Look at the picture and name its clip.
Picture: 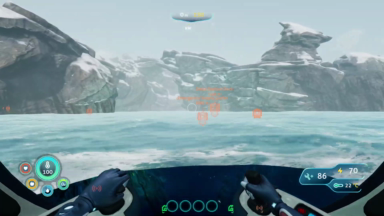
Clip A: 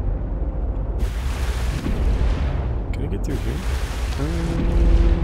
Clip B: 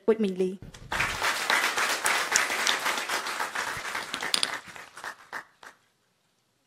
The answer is A